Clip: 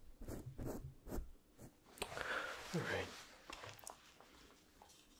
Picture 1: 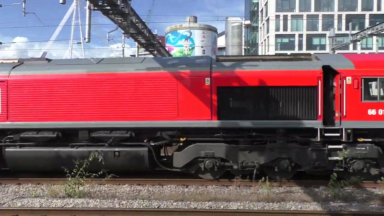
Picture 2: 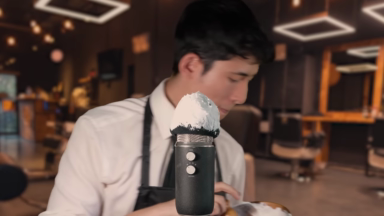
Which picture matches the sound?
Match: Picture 2